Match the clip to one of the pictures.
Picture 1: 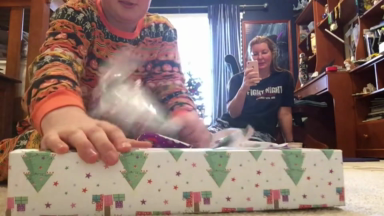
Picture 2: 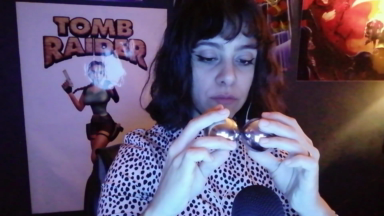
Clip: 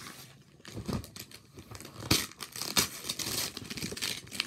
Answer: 1